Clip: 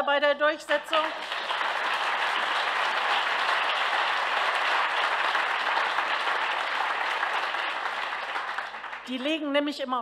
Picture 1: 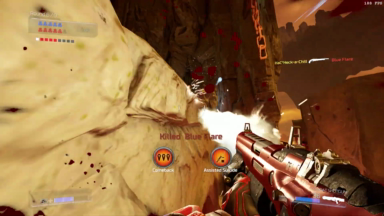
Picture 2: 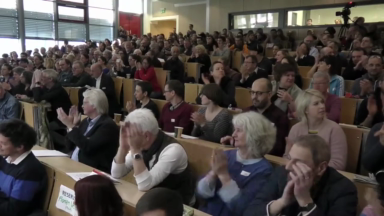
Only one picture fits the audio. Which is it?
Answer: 2